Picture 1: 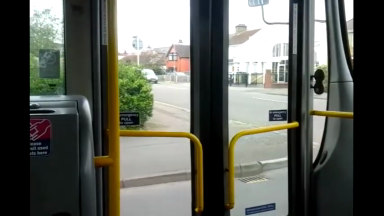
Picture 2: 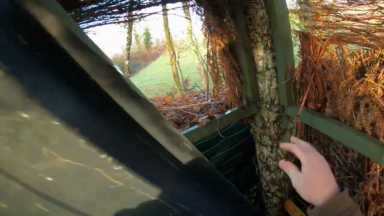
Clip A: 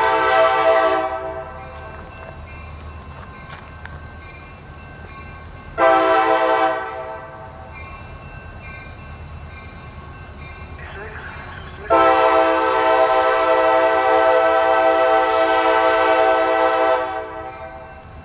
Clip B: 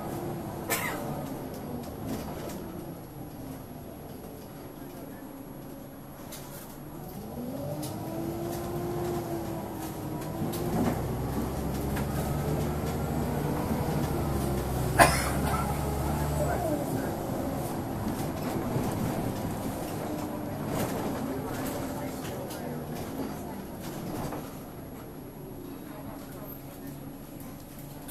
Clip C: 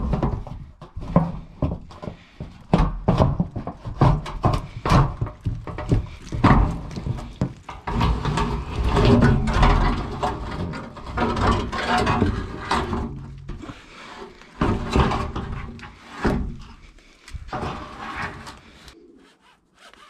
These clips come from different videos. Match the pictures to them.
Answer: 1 B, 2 C